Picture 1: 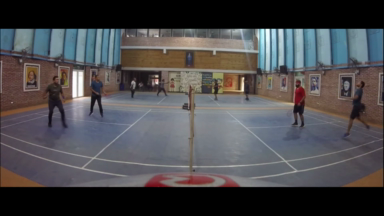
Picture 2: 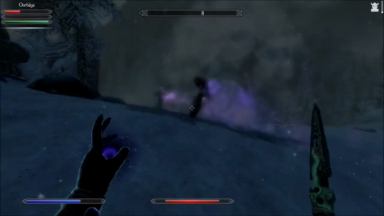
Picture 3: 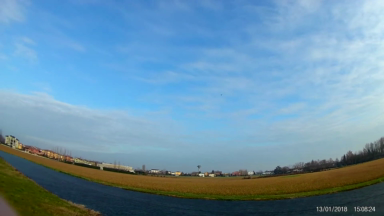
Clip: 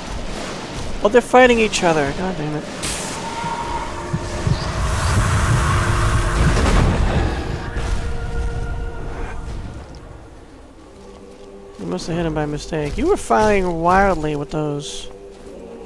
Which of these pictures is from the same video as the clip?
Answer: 2